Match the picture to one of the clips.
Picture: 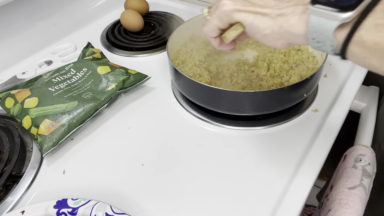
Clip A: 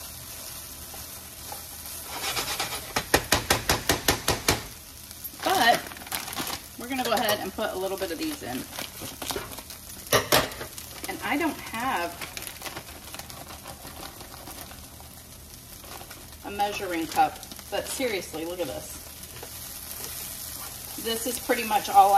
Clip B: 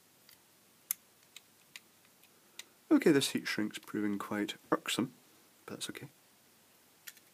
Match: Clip A